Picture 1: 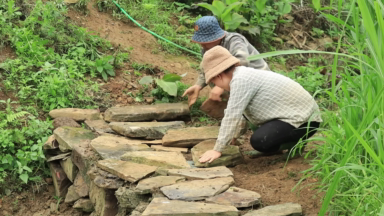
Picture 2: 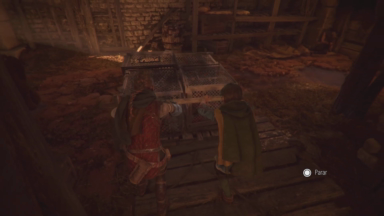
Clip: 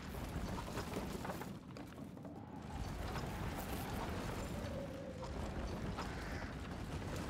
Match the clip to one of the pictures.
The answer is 2